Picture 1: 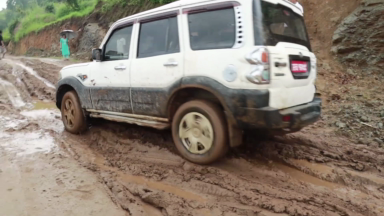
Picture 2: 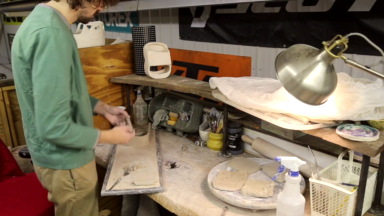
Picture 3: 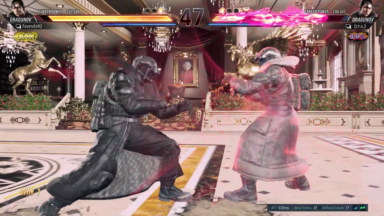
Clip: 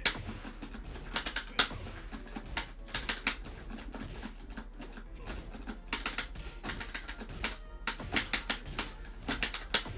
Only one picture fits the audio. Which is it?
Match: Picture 3